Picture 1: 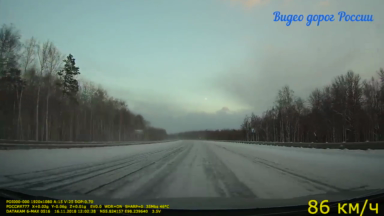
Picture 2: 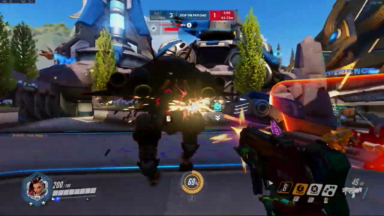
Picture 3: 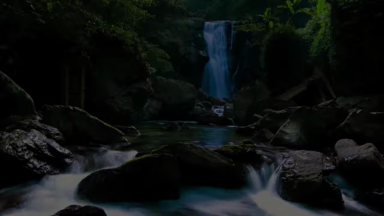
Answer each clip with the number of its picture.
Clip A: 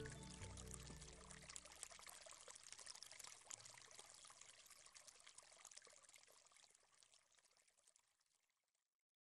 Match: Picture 3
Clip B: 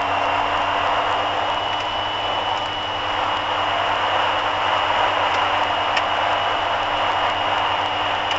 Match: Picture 1